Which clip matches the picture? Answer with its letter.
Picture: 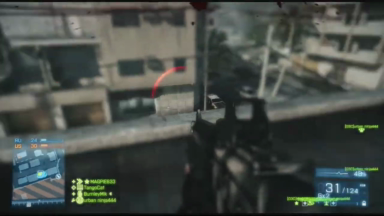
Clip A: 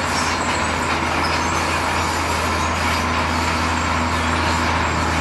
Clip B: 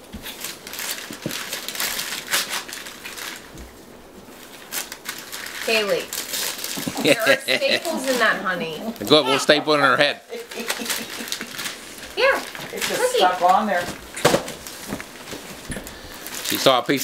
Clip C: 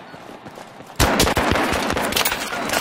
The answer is C